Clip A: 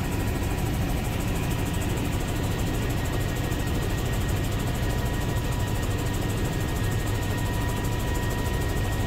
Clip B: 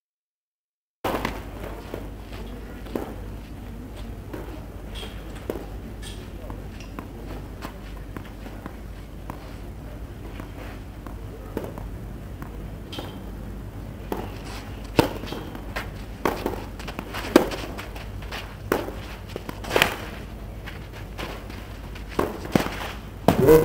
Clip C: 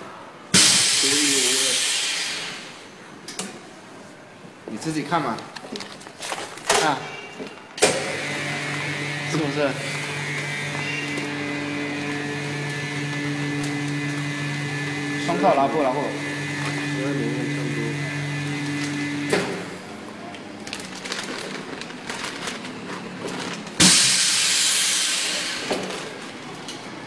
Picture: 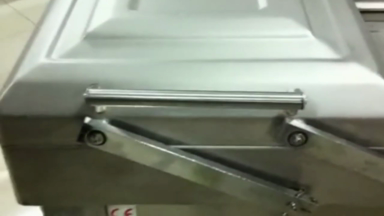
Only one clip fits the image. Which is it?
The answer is C